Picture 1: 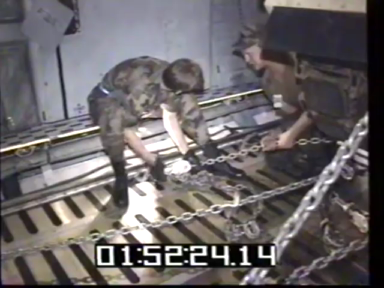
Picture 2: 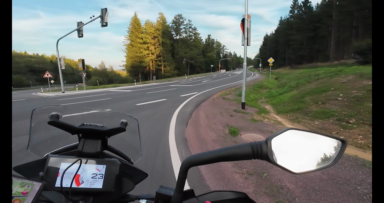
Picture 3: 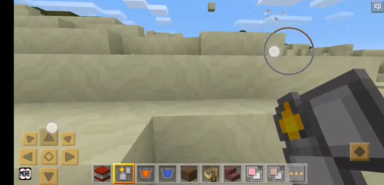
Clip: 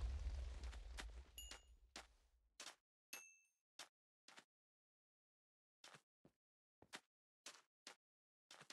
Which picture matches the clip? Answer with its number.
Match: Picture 3